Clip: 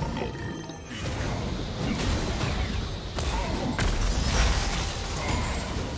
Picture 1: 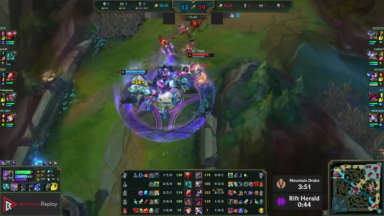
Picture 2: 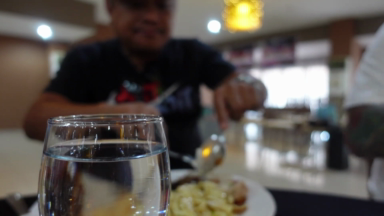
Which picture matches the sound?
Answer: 1